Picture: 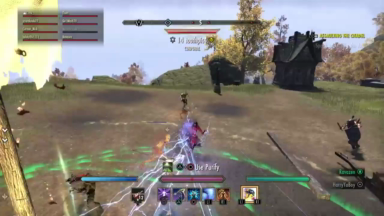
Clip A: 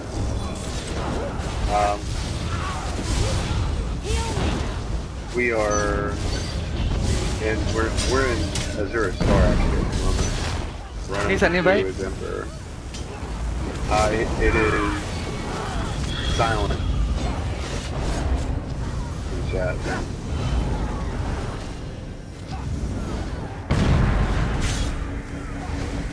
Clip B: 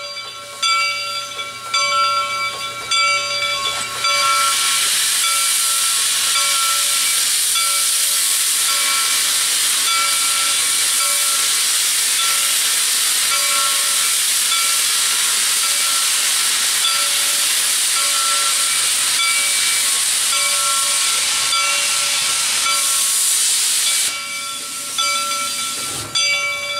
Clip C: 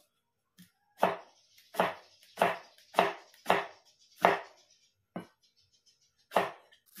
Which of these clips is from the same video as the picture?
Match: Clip A